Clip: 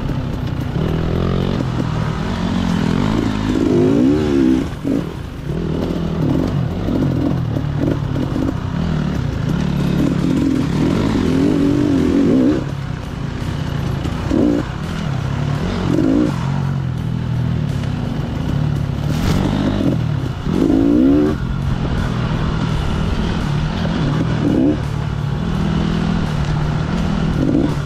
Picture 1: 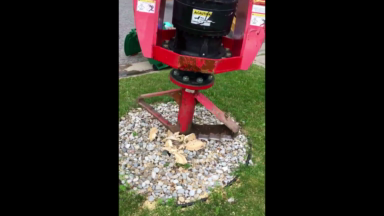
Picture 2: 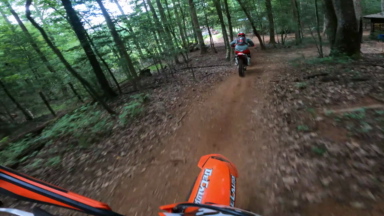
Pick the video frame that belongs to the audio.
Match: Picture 2